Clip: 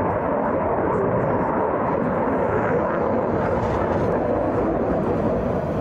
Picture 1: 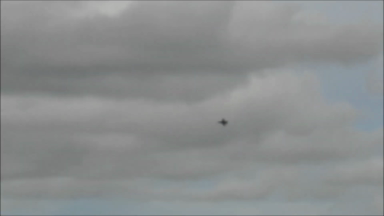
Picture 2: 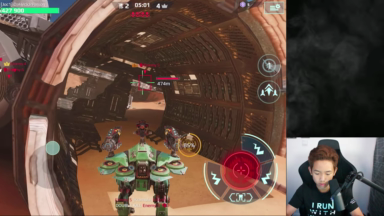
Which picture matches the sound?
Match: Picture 1